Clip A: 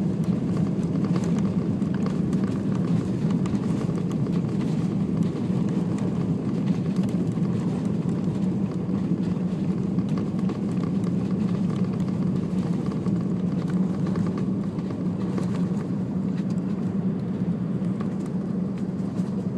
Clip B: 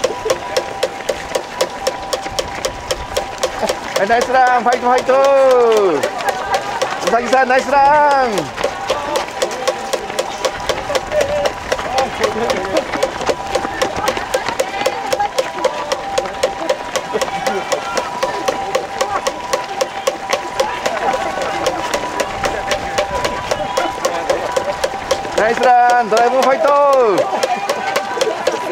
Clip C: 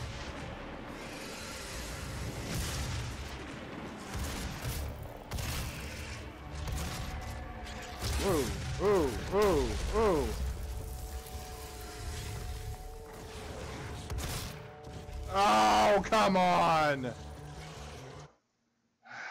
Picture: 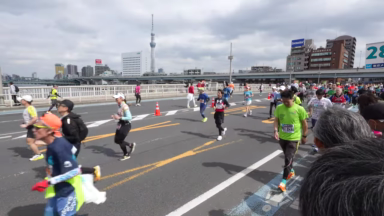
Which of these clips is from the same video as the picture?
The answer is B